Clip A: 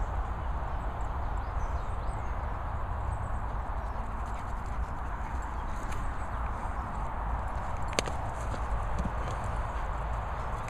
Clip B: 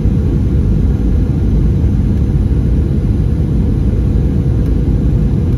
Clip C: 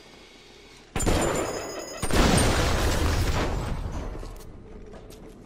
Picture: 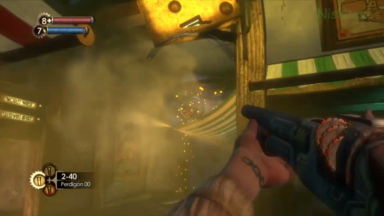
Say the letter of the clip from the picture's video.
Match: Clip C